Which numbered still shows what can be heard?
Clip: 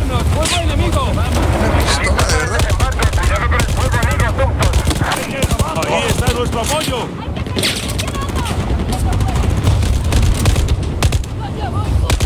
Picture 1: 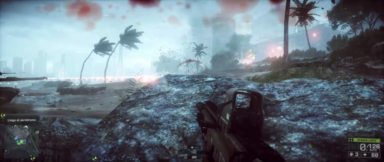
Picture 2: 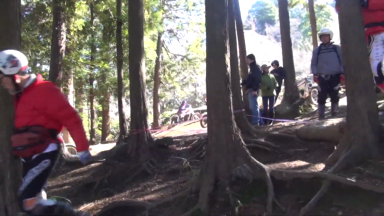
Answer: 1